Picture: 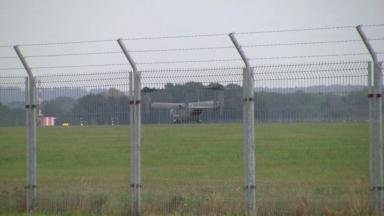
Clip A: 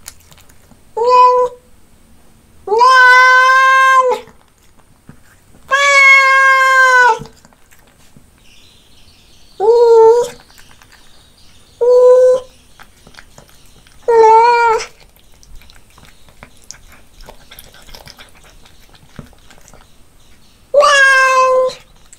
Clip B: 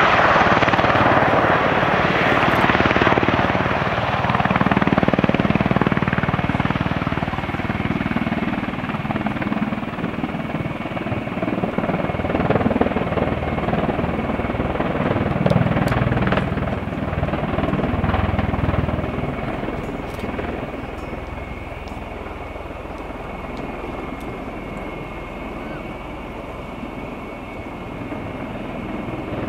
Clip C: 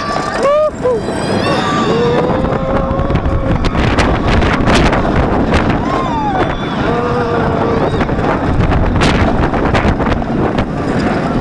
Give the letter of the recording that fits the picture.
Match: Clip B